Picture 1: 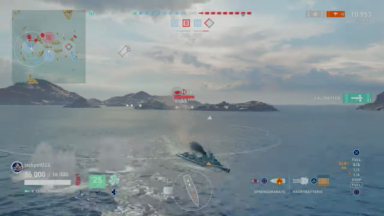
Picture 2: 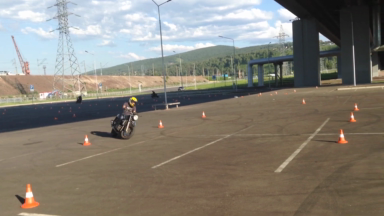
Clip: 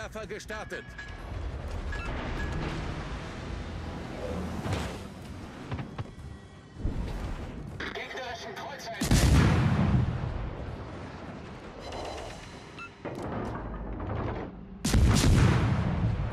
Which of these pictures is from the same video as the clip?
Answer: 1